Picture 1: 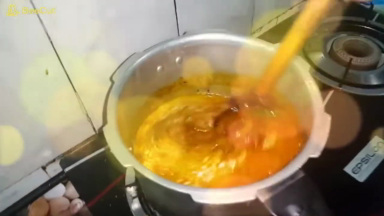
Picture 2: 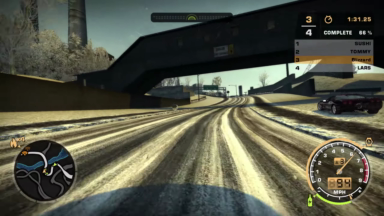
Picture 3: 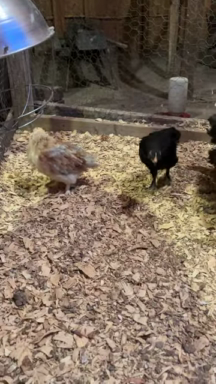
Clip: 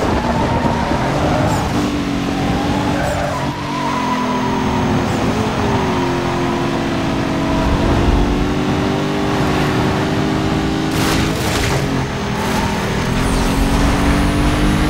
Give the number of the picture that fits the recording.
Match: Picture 2